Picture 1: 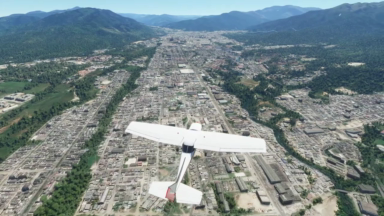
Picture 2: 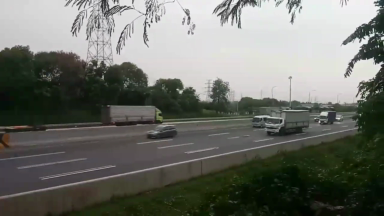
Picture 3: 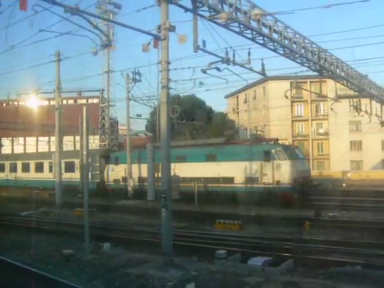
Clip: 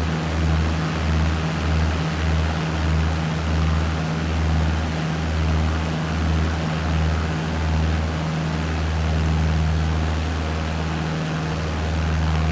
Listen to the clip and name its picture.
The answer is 1